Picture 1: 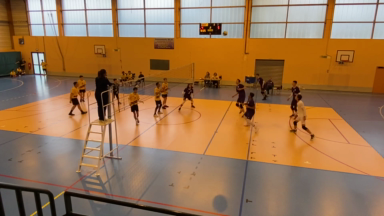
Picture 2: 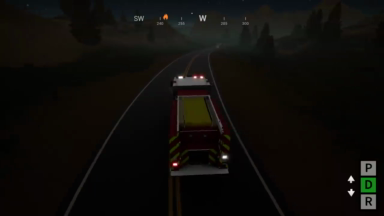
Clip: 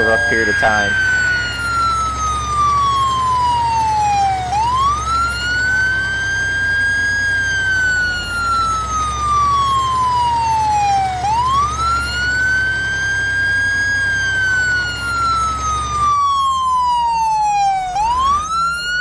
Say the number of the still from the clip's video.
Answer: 2